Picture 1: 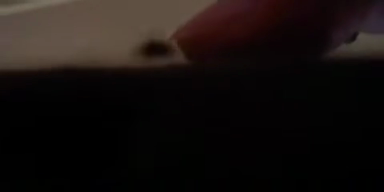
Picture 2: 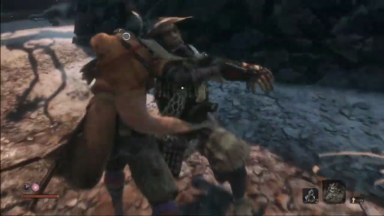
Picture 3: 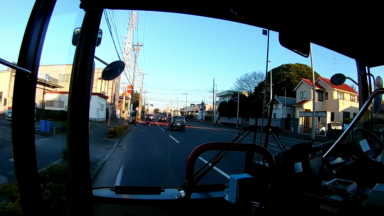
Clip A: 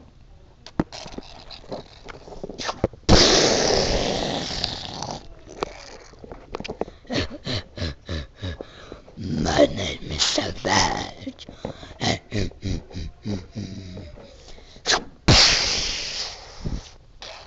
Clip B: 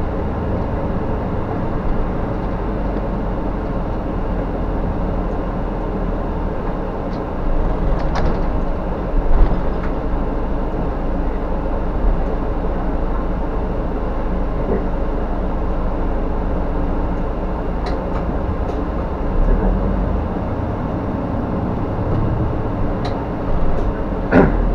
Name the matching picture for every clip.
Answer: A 1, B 3